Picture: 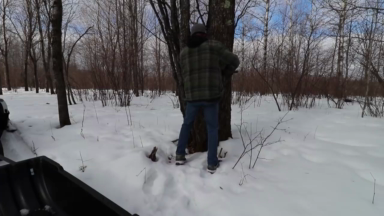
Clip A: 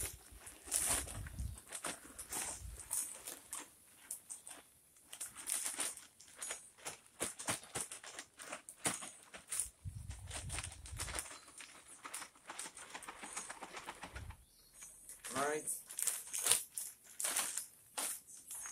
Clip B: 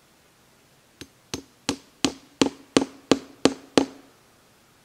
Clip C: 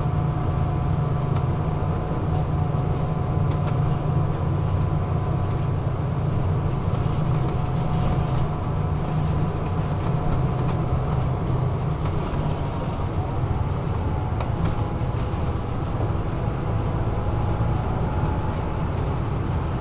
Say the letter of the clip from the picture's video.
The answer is B